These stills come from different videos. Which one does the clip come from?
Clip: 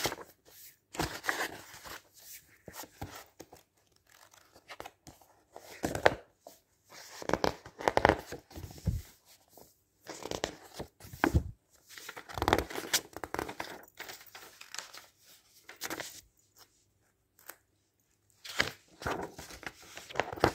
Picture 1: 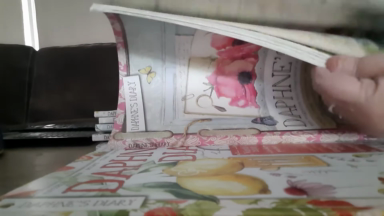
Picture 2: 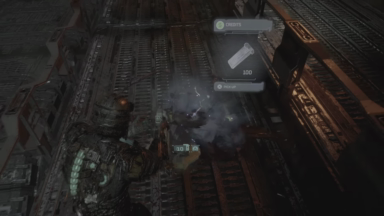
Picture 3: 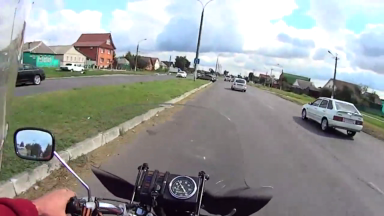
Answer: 1